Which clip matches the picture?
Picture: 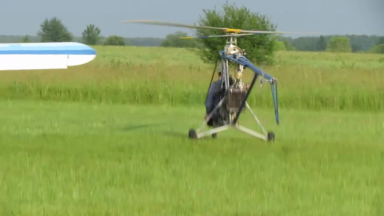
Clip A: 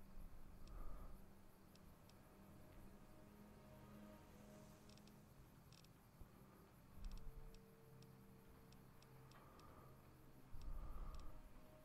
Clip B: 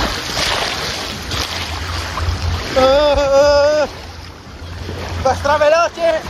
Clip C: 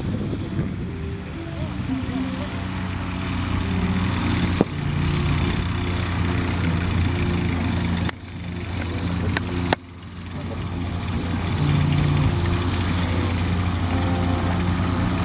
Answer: C